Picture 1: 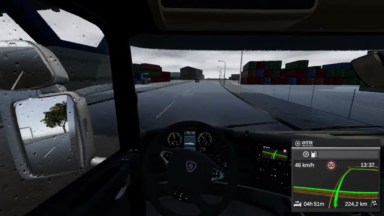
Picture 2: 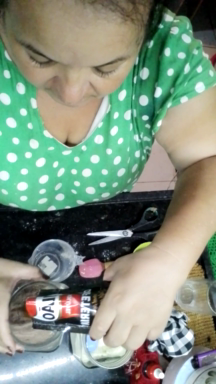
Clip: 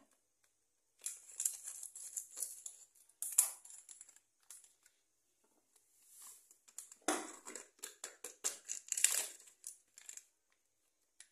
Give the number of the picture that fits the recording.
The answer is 2